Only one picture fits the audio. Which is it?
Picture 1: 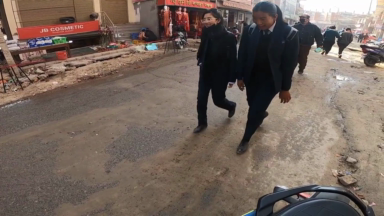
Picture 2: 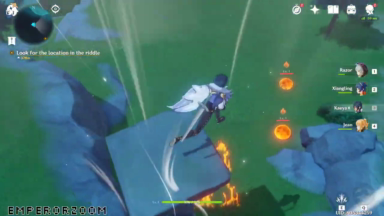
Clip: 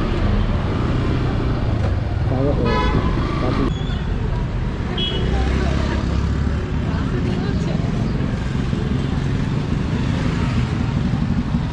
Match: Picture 1